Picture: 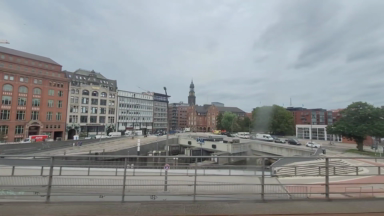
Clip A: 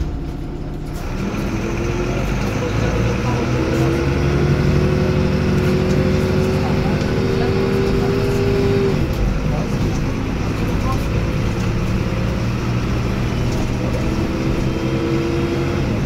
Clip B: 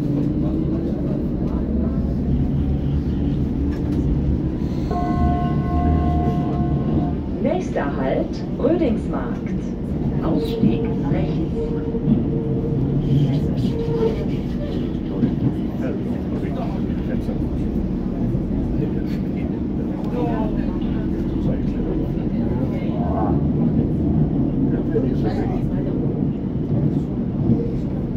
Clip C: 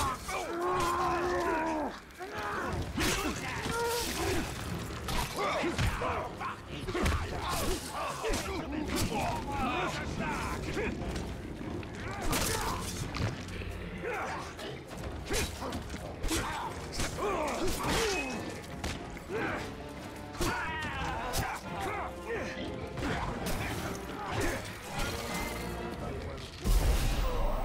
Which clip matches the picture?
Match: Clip B